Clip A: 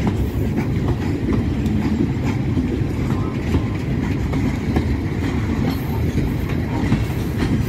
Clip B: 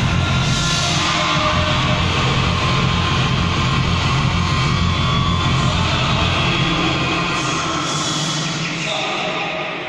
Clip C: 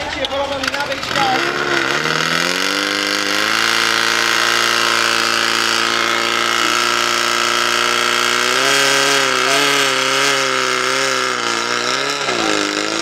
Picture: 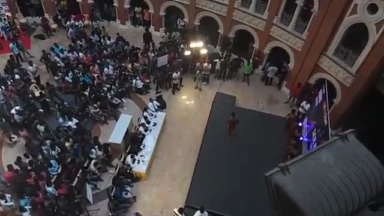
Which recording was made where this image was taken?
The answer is B